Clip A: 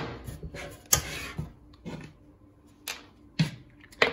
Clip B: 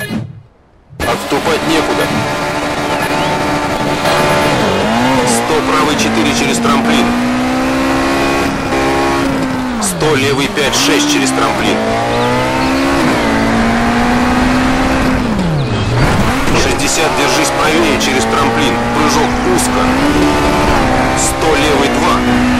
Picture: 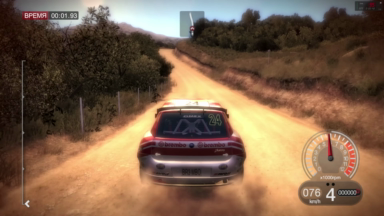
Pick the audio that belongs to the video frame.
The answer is B